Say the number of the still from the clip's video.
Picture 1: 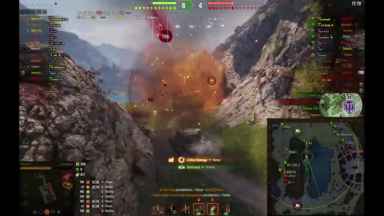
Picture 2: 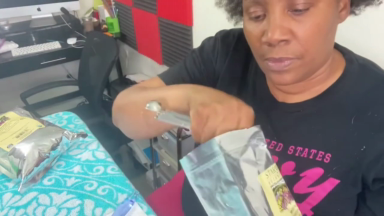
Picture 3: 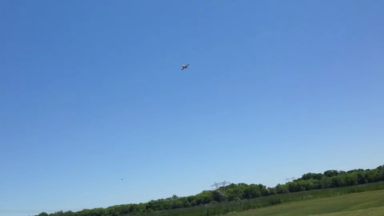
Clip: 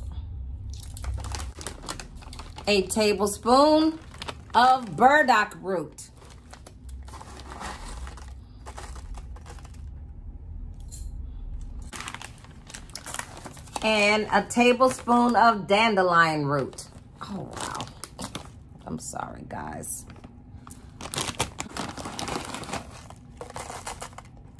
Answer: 2